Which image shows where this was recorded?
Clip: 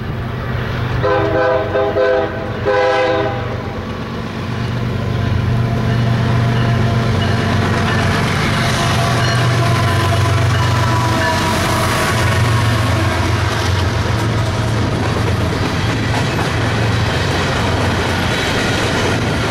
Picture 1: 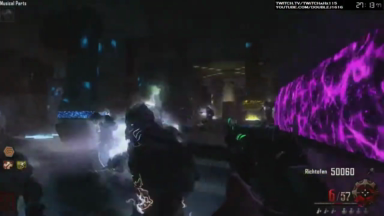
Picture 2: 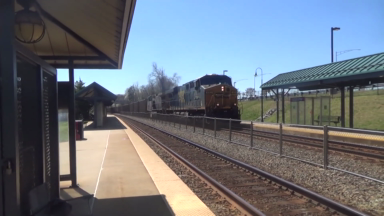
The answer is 2